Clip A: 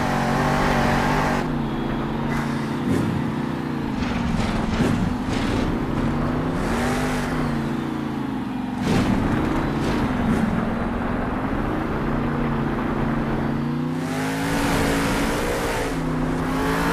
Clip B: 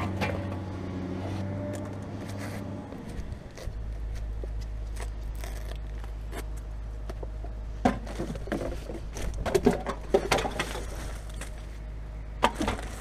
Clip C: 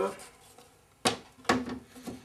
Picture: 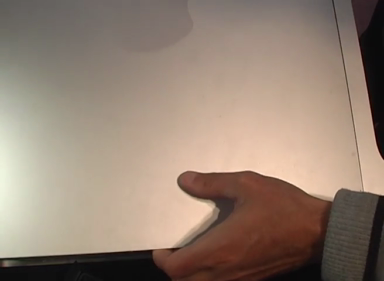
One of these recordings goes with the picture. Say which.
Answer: C